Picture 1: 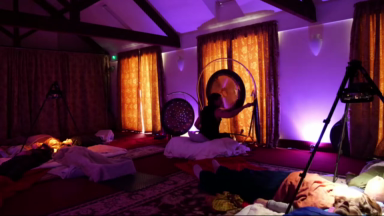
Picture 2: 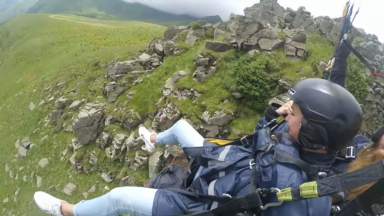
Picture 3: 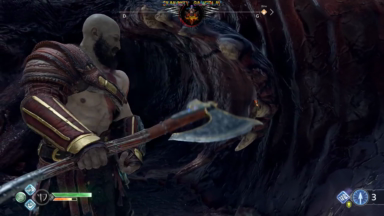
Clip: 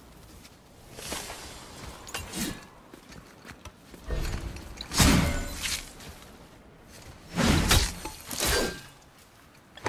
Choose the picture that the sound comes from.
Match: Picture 3